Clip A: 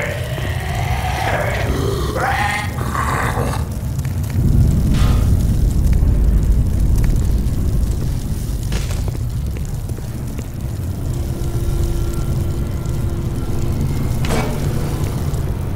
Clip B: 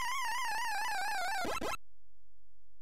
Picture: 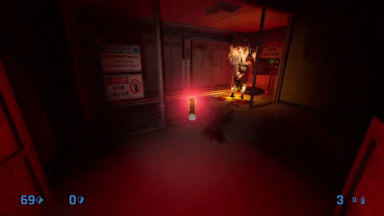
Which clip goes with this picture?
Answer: A